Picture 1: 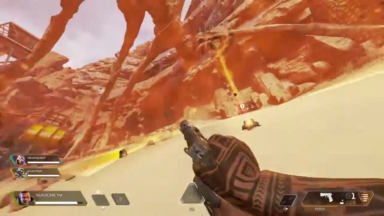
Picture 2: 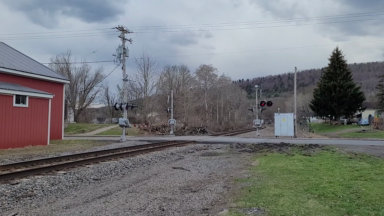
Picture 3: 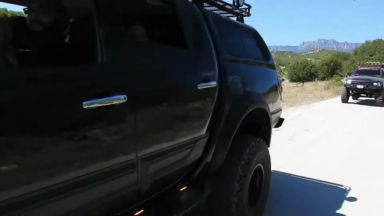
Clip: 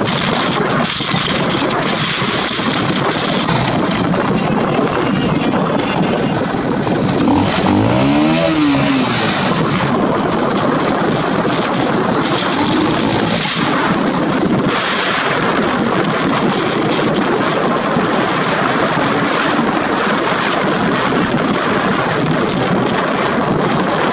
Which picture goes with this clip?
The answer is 3